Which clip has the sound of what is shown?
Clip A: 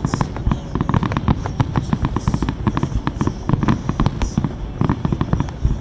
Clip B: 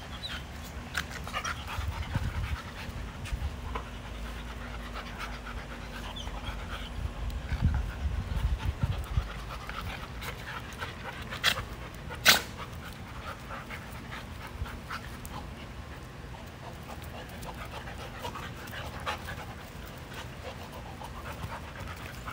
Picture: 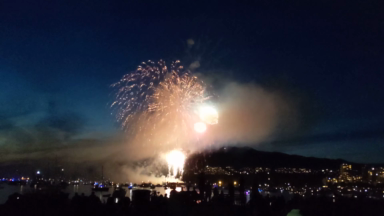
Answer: A